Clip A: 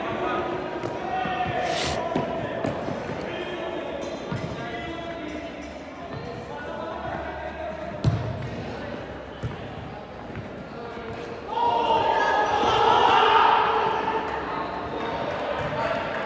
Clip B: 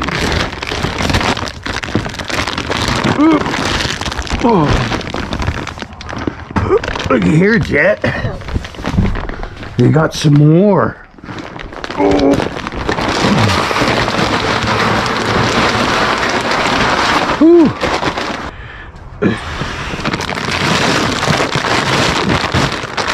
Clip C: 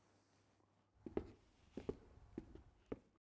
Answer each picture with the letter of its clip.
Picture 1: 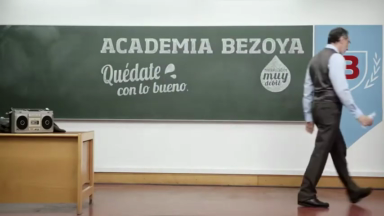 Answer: C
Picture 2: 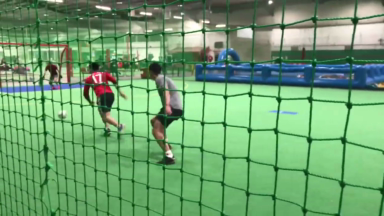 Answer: A